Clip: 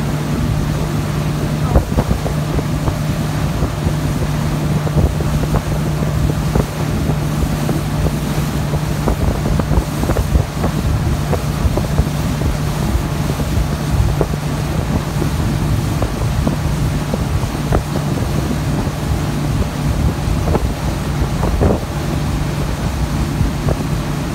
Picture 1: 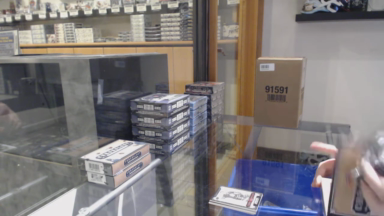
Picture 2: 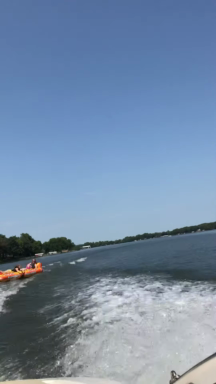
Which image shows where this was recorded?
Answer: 2